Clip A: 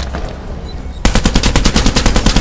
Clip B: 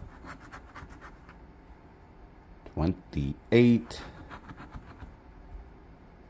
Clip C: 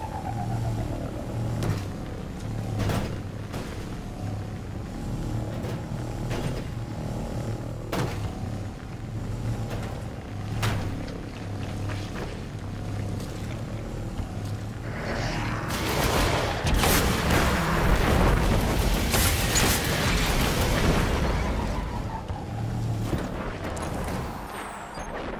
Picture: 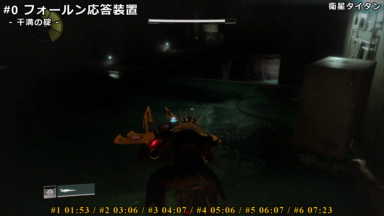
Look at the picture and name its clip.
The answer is C